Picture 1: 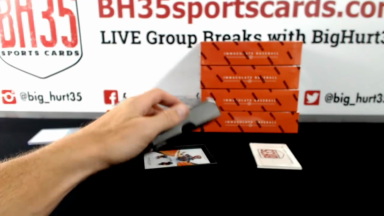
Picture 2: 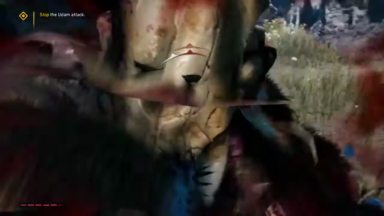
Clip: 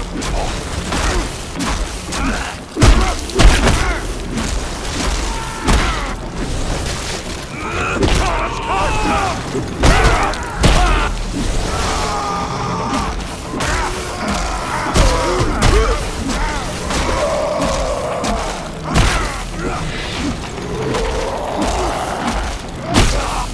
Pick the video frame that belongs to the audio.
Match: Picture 2